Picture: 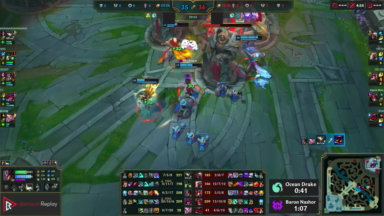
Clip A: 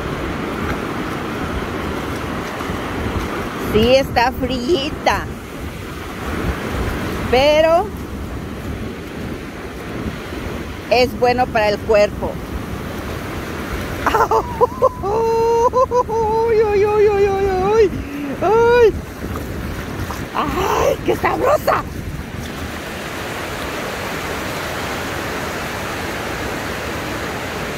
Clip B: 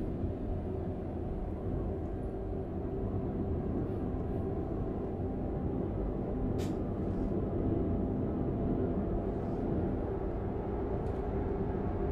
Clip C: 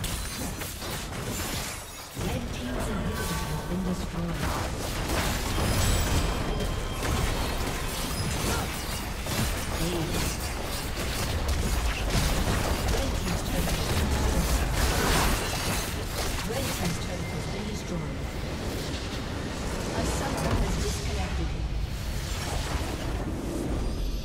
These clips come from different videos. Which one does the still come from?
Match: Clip C